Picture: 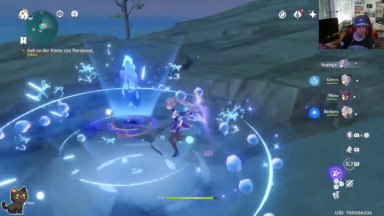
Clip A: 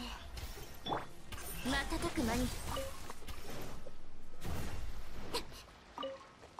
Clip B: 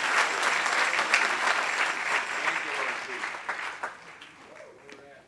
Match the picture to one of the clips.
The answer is A